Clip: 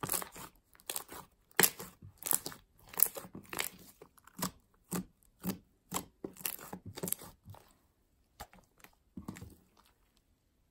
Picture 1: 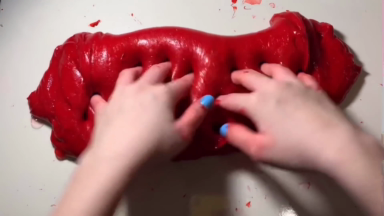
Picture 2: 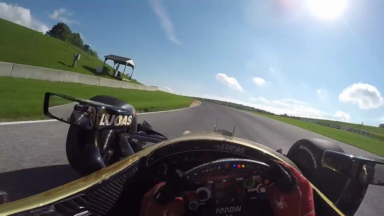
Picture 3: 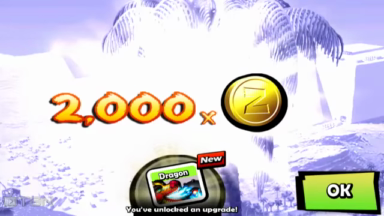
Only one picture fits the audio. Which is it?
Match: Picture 1